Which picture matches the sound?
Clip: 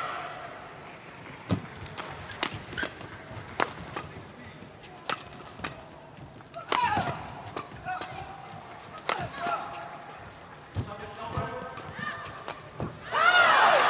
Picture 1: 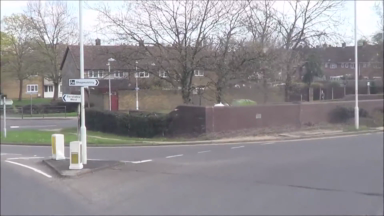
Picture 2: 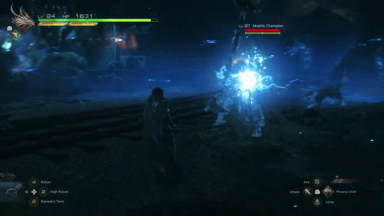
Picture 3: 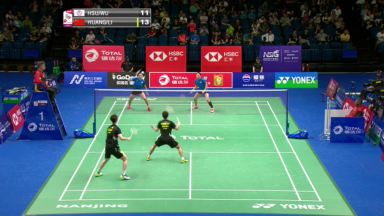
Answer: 3